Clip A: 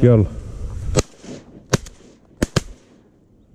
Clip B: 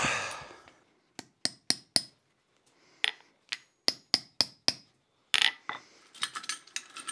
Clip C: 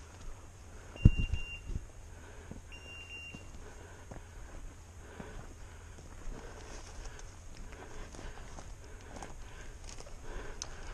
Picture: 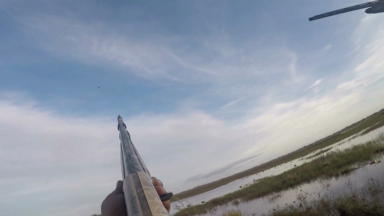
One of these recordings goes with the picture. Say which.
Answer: A